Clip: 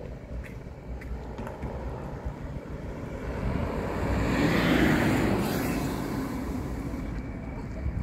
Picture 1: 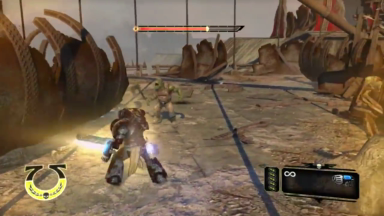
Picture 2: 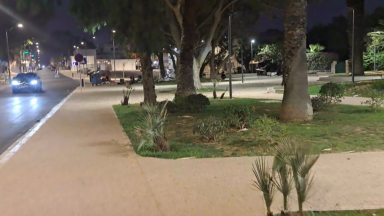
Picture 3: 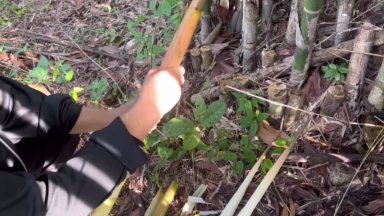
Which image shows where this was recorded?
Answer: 2